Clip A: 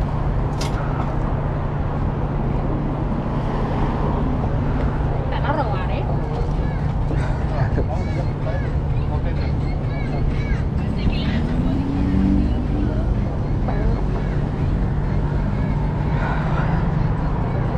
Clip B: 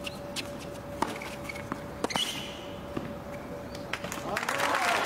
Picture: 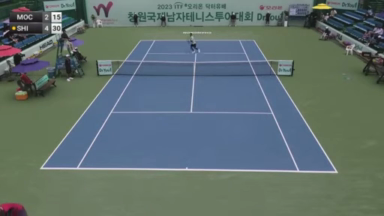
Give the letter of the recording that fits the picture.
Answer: B